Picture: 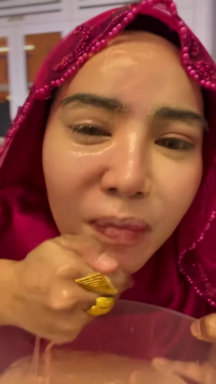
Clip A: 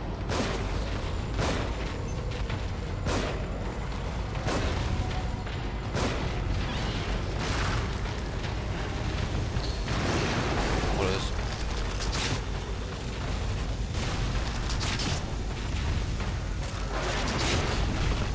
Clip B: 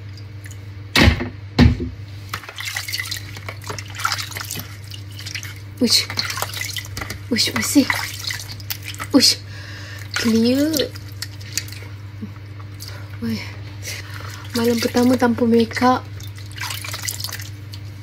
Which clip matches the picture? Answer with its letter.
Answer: B